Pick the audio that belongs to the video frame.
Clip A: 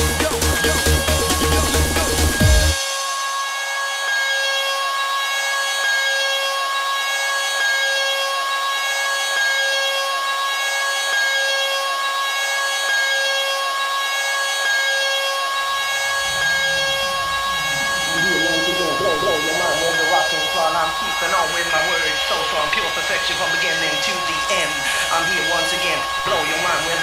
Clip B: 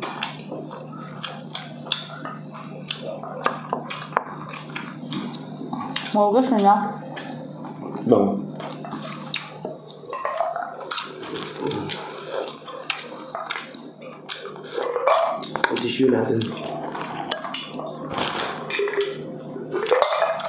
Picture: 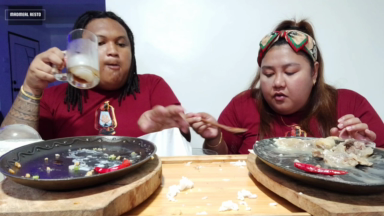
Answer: B